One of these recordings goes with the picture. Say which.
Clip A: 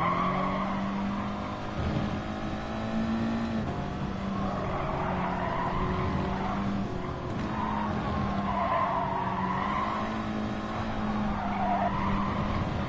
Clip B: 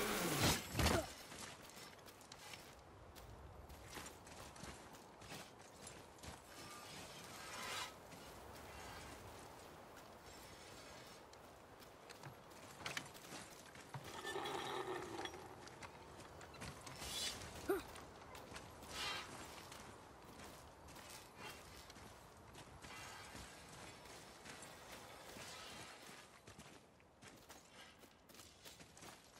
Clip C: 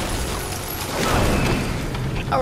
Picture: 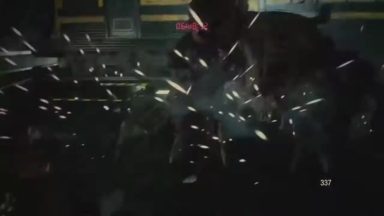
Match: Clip C